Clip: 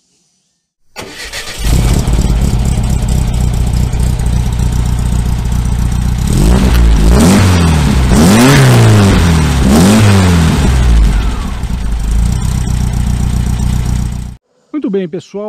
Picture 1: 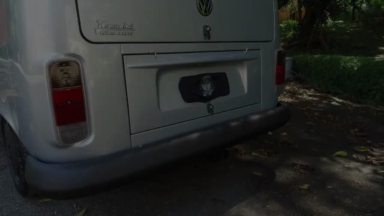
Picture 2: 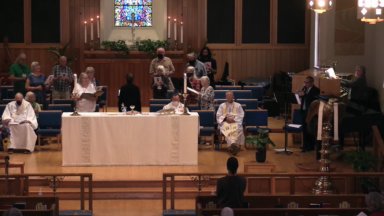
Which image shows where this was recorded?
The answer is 1